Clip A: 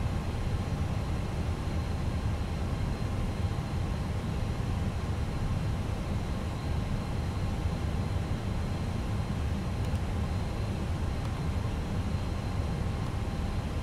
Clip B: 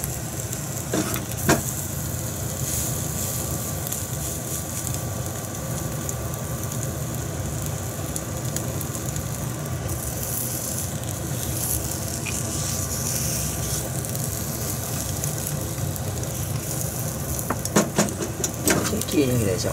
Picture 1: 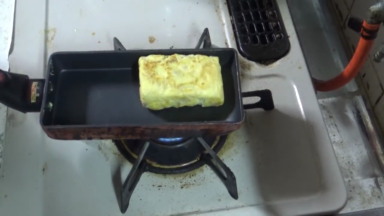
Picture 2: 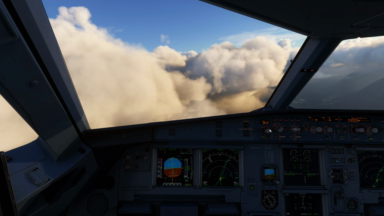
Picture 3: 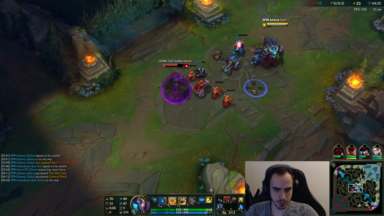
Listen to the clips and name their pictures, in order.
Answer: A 2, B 1